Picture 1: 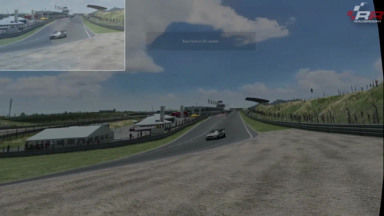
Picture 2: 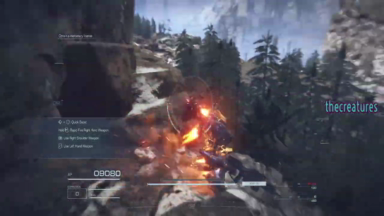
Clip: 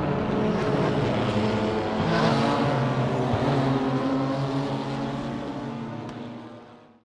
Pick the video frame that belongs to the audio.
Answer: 1